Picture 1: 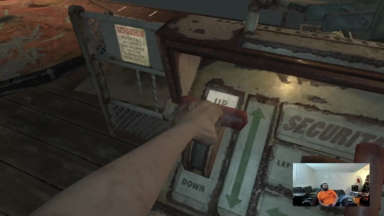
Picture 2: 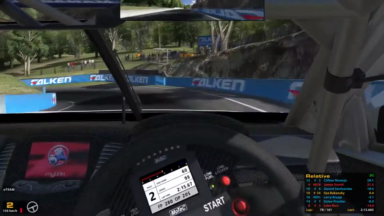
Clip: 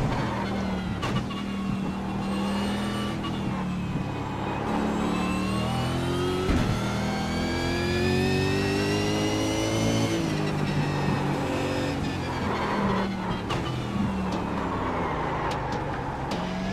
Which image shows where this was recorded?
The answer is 2